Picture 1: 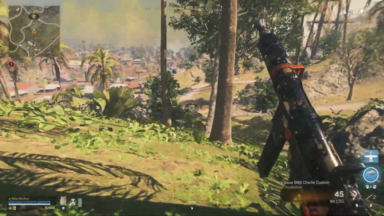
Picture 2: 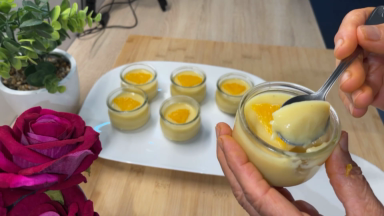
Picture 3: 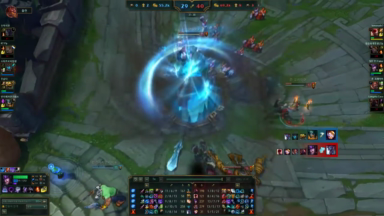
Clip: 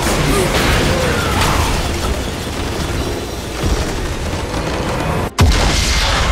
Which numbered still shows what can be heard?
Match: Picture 3